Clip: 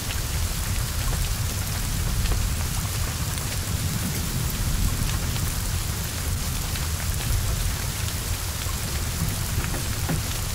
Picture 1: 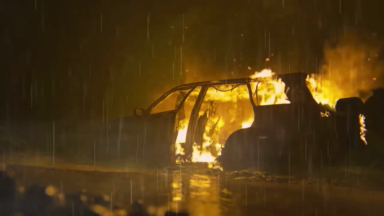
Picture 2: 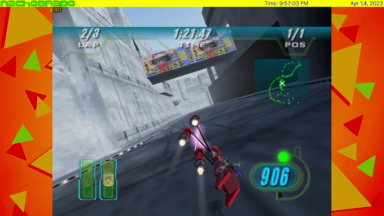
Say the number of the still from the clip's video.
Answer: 1